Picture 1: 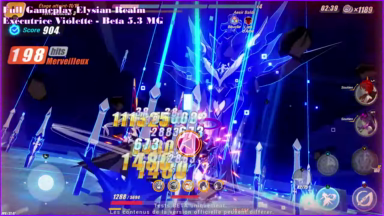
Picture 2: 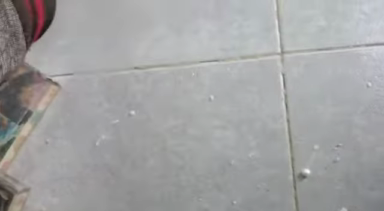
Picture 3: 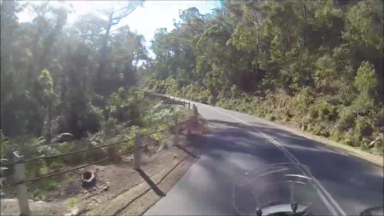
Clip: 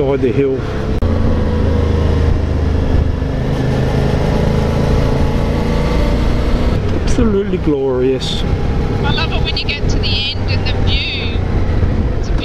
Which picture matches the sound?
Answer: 3